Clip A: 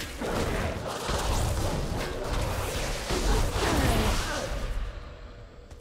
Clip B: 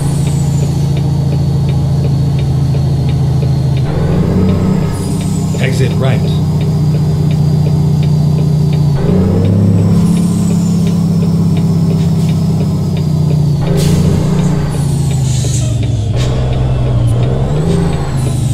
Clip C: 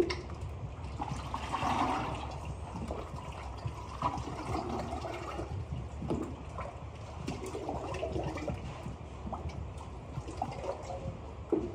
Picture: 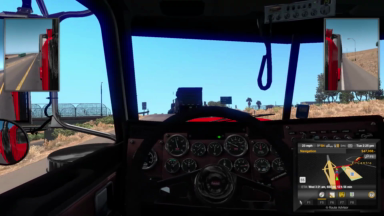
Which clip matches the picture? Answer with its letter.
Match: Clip B